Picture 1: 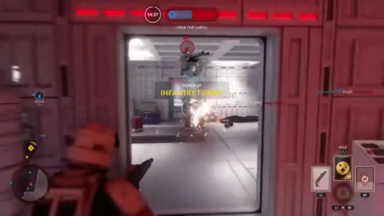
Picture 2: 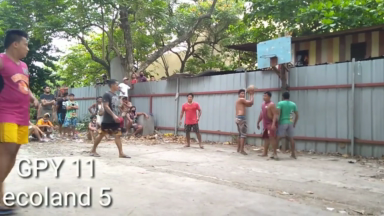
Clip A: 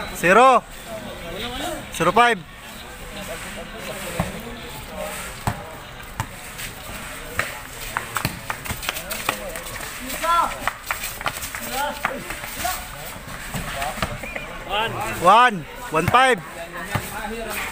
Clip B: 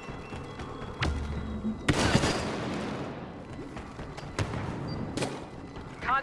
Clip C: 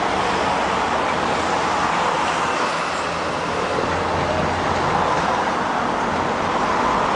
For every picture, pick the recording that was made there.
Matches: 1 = B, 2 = A